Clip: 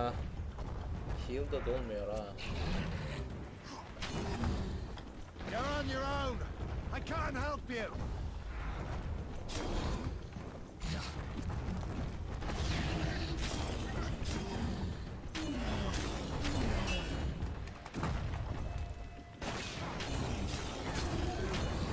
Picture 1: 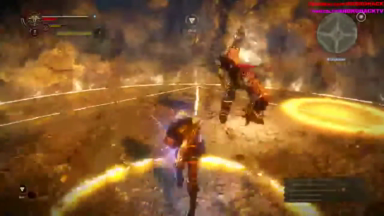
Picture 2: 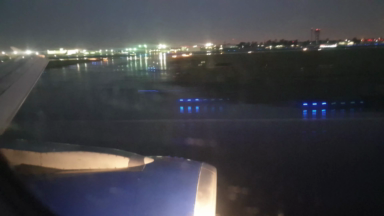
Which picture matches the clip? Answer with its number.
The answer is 1